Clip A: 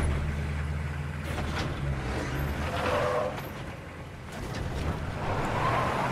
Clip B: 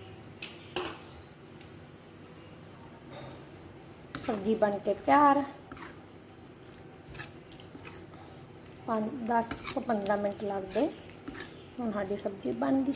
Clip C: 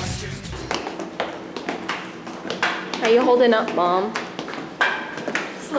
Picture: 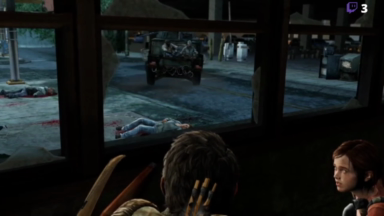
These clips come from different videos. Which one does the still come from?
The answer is A